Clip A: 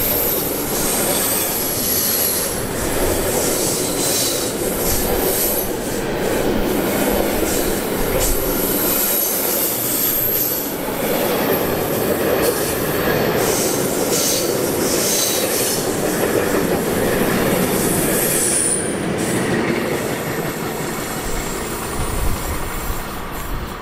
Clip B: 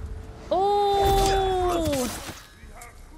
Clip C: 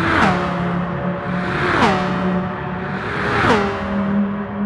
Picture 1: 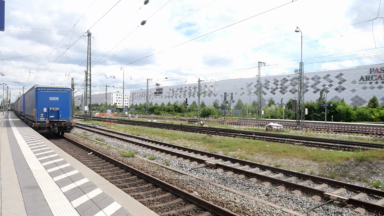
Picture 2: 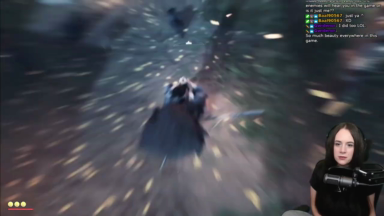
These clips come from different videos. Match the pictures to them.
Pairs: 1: A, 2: B